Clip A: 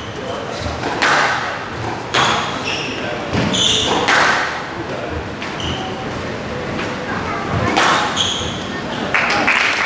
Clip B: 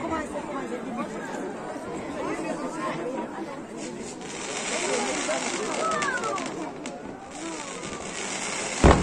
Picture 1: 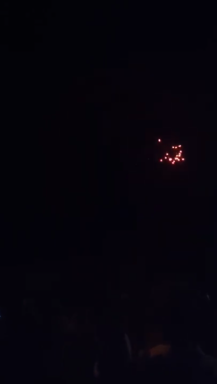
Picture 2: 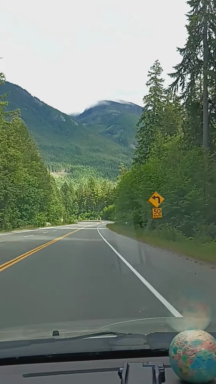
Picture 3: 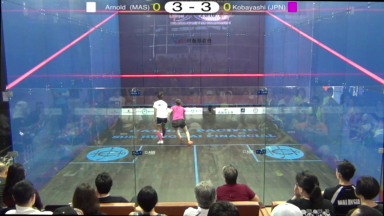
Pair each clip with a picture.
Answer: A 3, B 1